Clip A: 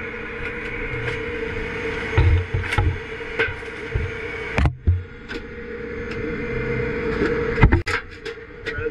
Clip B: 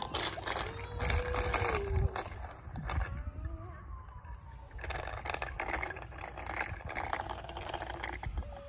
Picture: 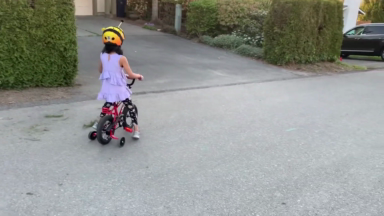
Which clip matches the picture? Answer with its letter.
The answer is B